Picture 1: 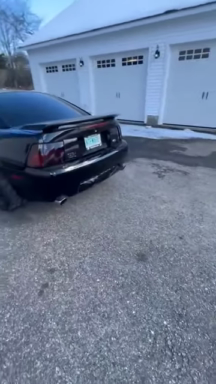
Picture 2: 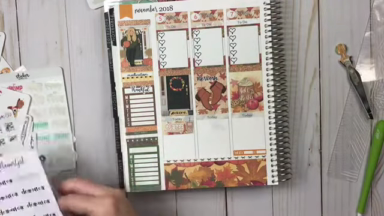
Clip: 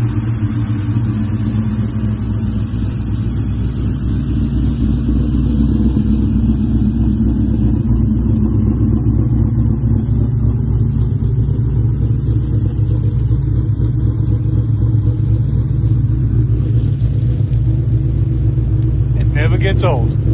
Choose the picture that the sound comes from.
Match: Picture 1